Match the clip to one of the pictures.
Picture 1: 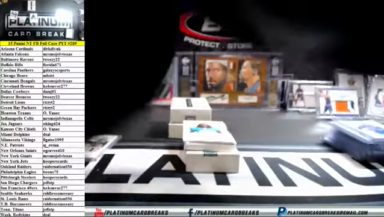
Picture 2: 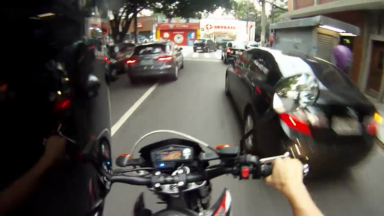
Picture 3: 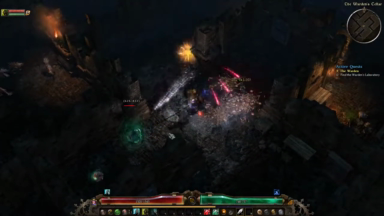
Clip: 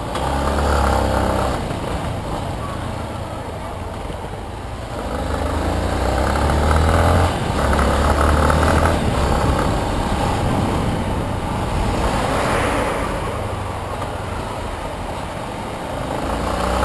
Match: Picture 2